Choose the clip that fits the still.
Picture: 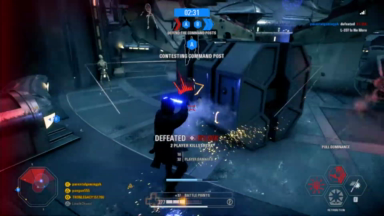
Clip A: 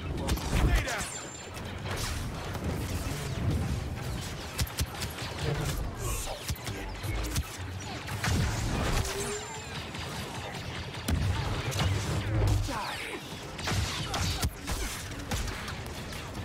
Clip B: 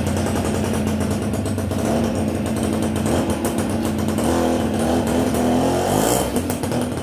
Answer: A